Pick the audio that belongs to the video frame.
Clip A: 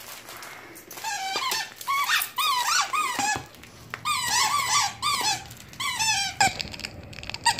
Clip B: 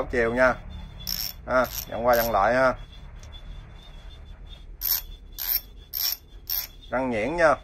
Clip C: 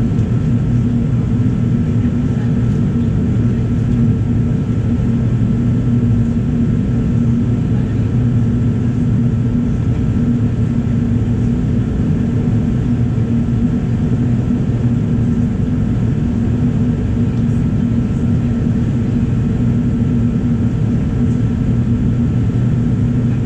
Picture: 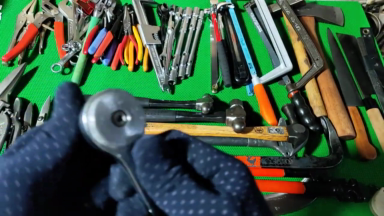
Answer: B